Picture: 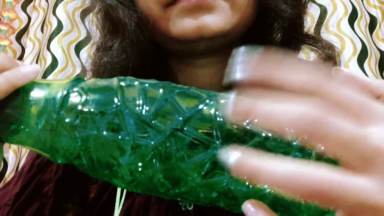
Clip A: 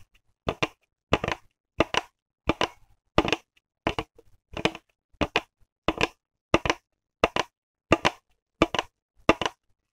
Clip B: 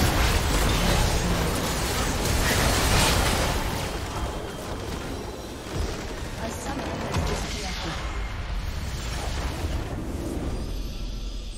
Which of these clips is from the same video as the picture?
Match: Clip A